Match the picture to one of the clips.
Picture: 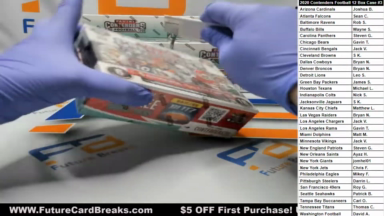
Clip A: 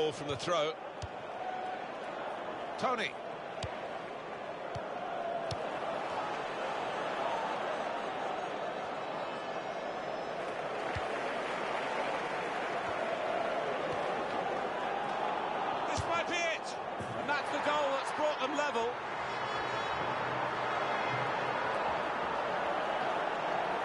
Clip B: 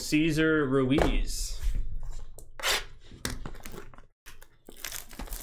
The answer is B